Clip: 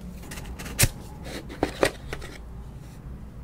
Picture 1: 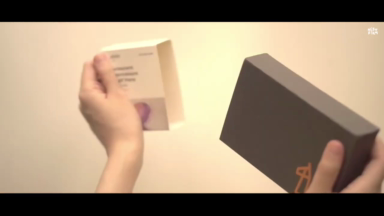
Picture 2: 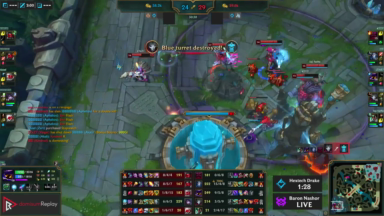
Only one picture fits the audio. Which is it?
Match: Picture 1